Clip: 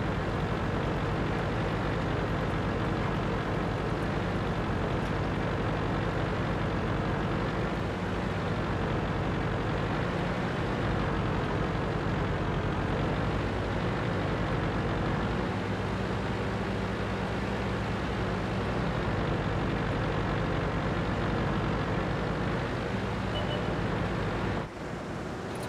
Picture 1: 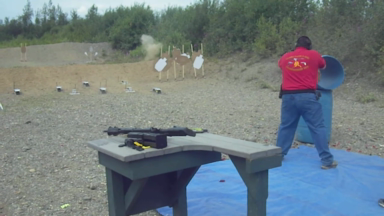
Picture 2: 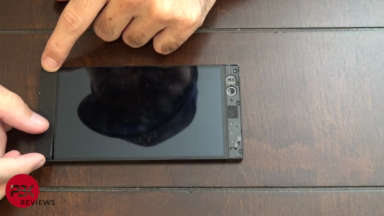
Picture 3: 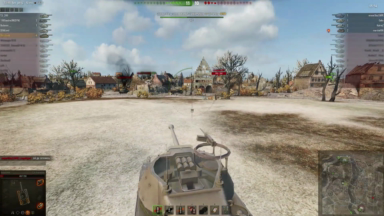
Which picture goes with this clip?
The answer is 3